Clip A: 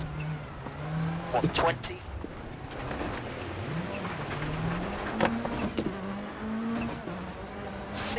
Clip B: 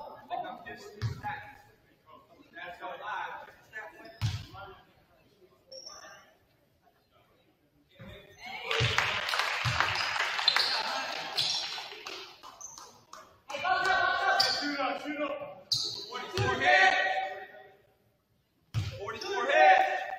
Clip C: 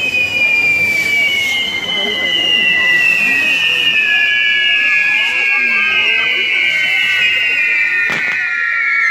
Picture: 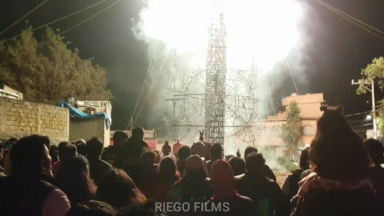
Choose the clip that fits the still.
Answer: C